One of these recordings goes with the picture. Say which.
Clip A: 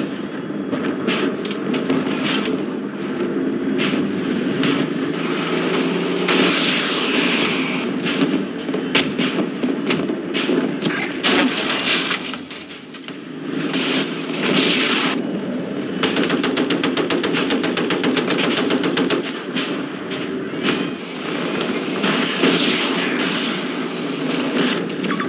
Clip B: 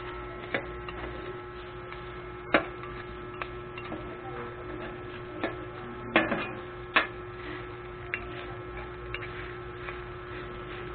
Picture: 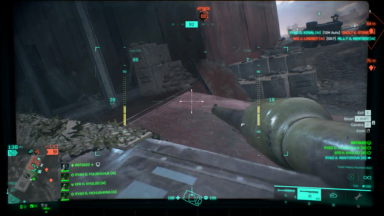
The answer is A